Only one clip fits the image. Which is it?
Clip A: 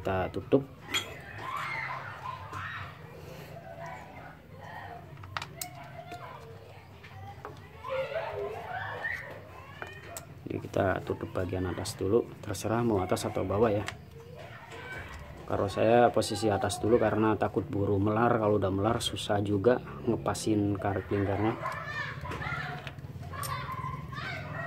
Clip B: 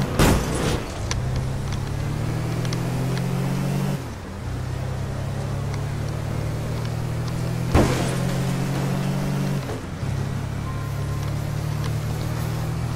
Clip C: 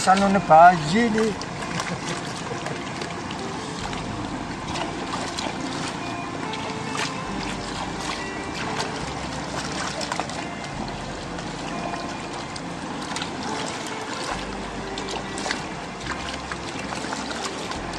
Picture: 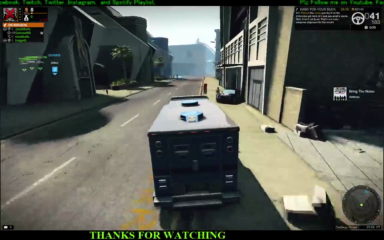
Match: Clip B